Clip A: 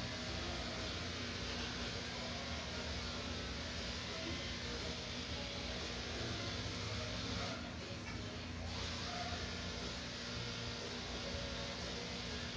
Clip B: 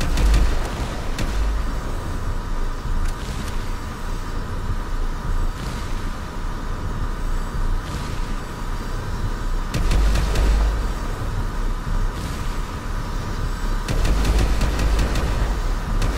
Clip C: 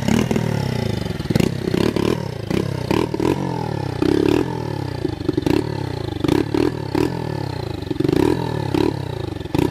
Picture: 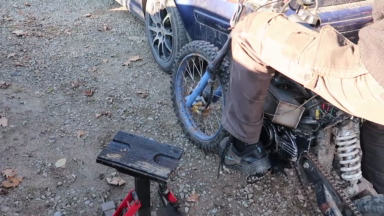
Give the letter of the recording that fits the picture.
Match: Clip C